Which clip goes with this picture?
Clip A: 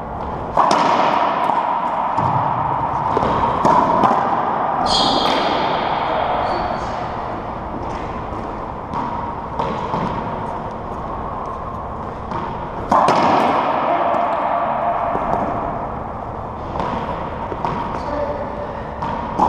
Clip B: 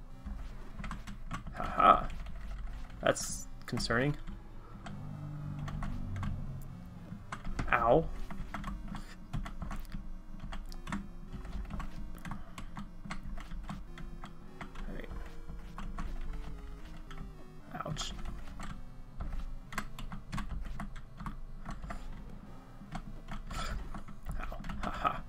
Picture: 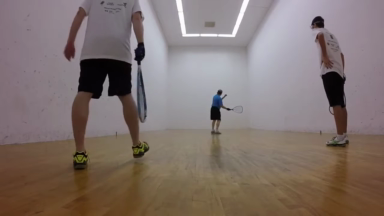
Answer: A